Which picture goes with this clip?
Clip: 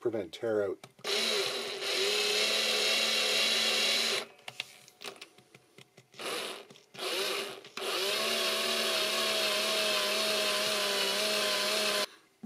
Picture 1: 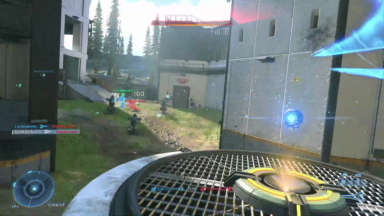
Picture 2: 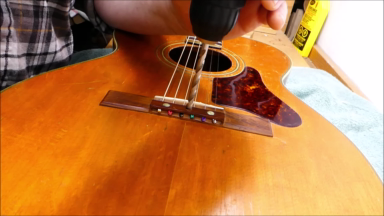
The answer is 2